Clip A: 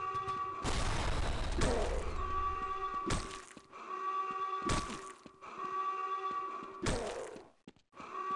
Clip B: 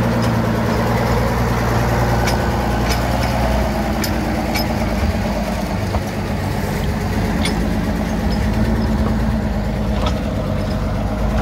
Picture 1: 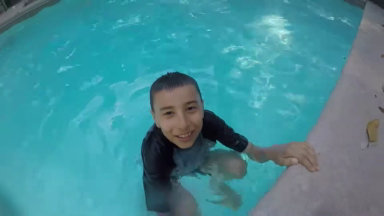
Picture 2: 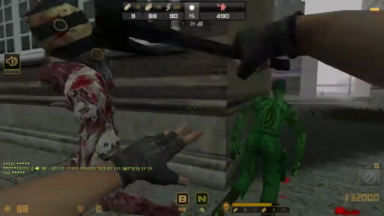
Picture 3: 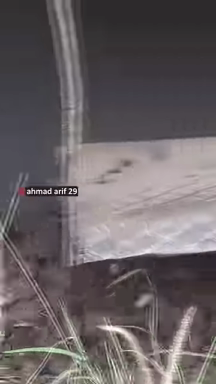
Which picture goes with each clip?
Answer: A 2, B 3